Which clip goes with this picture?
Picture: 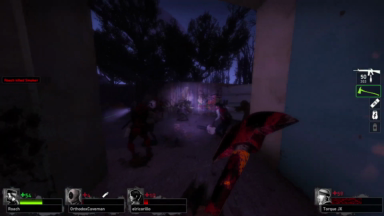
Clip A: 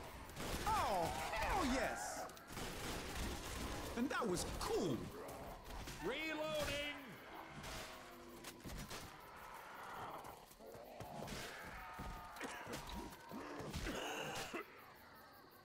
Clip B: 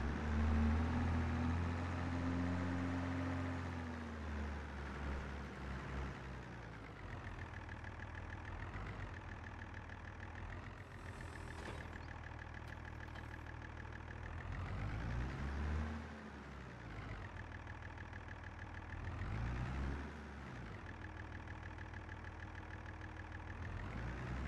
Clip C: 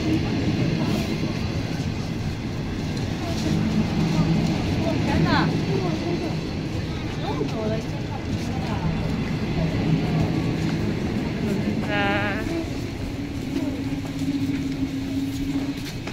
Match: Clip A